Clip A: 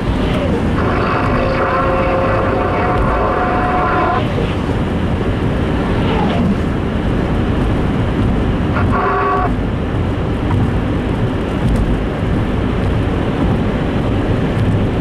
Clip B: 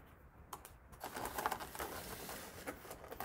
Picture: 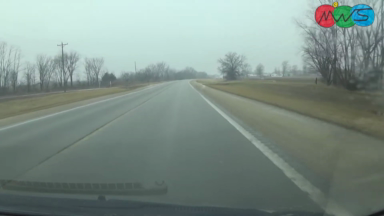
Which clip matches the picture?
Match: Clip A